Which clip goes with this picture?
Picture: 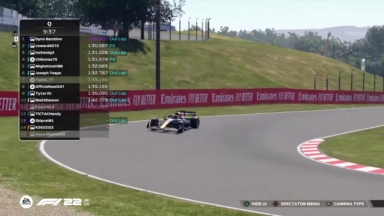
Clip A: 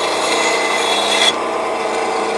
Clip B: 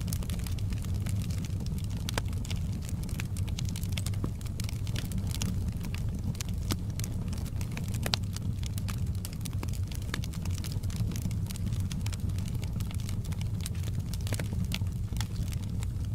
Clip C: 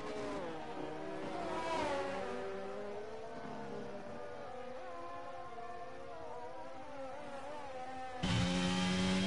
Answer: C